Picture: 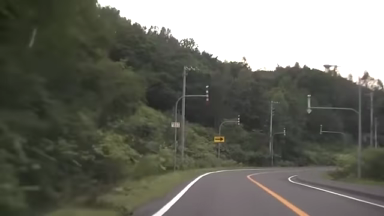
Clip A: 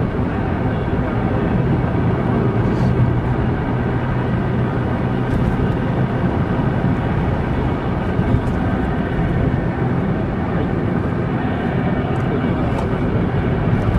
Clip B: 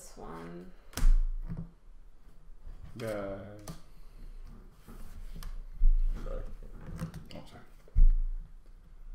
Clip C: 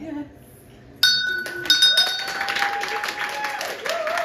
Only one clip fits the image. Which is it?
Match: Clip A